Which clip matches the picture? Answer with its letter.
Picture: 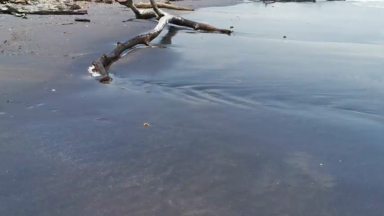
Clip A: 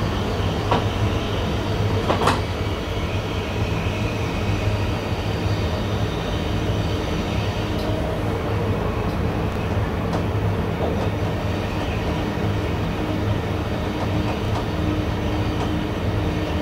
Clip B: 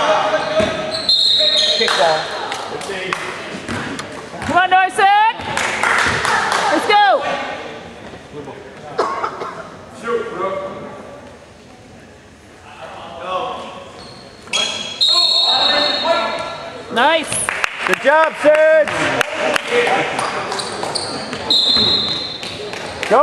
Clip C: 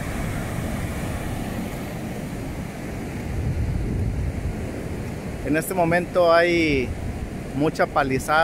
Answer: C